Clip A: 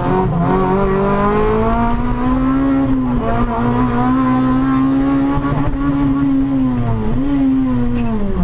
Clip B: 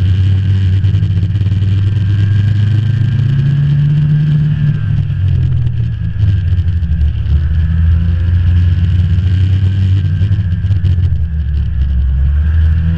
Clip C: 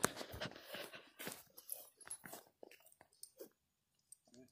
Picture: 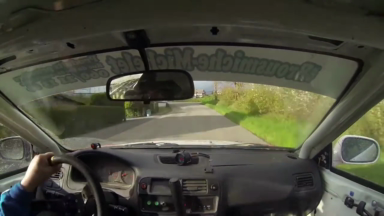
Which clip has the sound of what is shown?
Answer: A